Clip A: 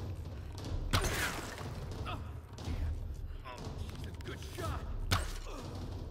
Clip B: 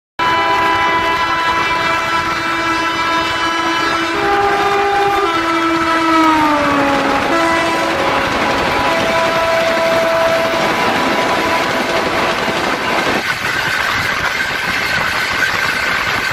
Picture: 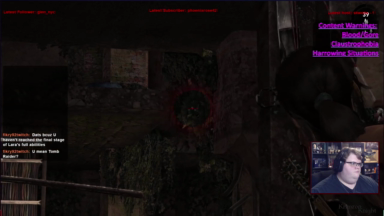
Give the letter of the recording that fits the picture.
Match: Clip A